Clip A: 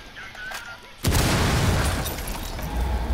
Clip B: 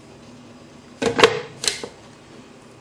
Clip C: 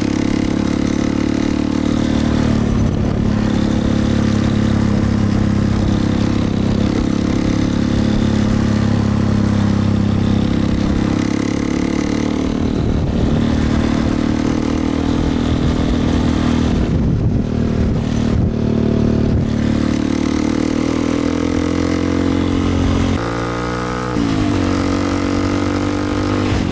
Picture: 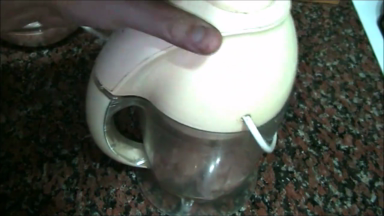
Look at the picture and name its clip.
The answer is B